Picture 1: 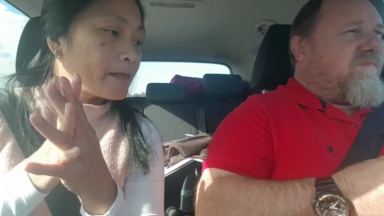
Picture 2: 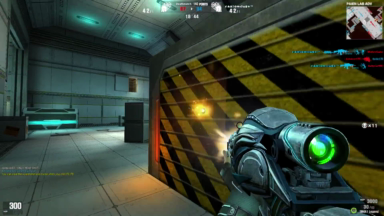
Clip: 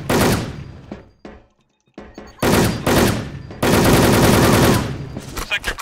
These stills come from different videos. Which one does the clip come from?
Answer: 2